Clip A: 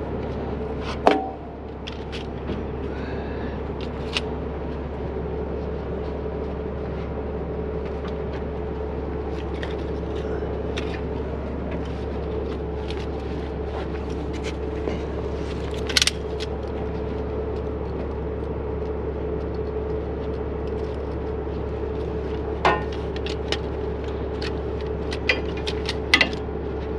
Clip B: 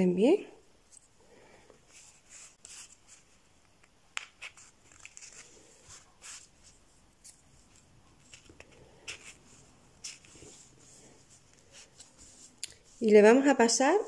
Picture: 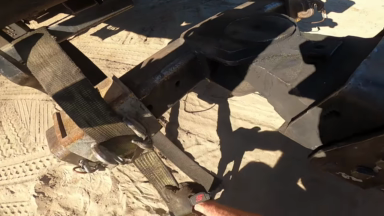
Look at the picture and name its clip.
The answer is A